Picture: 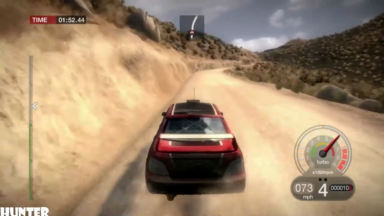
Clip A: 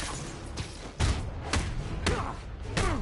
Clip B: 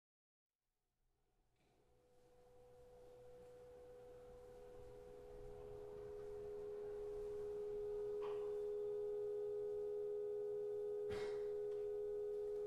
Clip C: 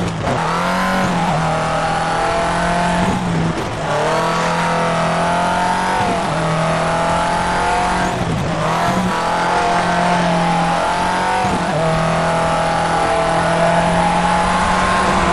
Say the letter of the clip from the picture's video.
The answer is C